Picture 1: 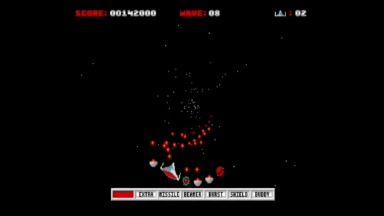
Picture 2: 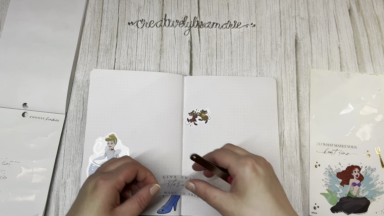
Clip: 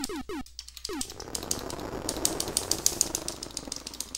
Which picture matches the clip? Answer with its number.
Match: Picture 1